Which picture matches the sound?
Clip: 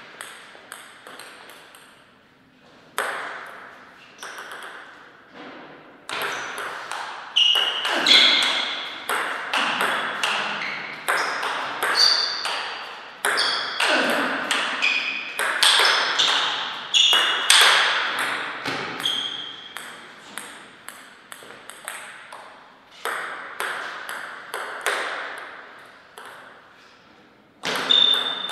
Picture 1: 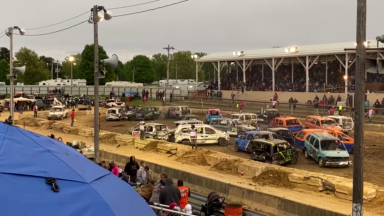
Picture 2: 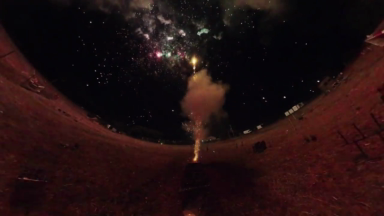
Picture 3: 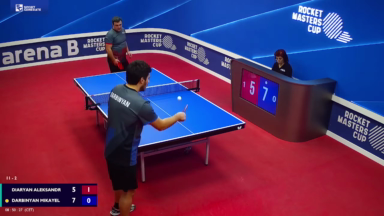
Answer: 3